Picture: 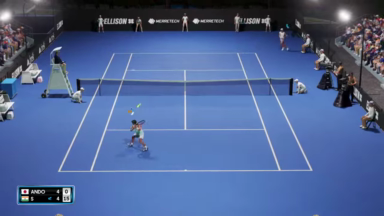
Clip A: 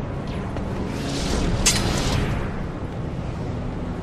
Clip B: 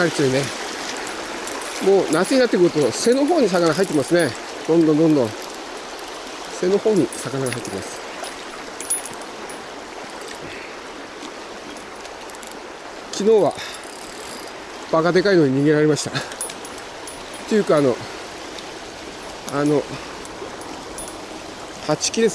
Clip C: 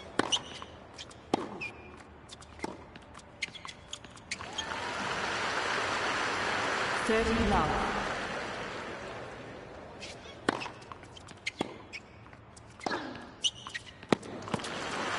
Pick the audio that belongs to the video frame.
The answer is C